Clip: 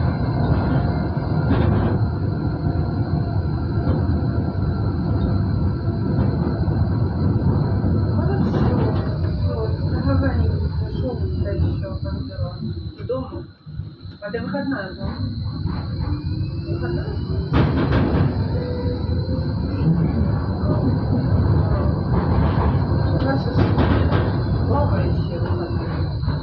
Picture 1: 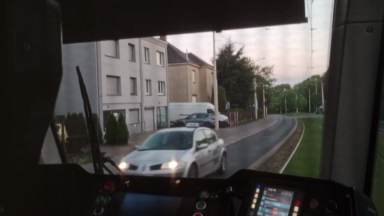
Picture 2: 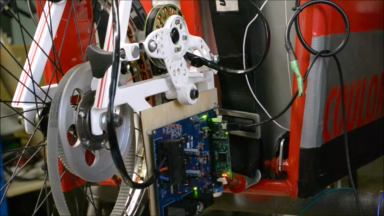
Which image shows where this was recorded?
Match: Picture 1